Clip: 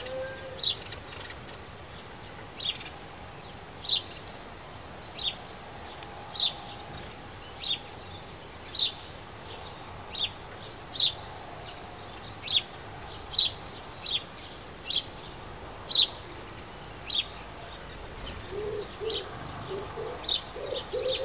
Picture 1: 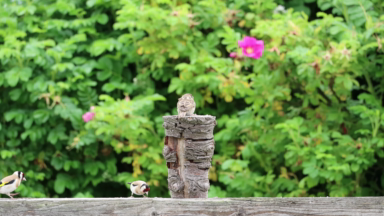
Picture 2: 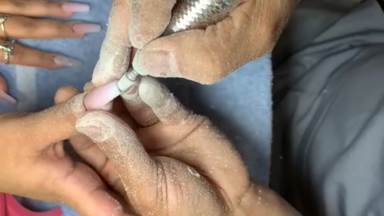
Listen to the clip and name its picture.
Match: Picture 1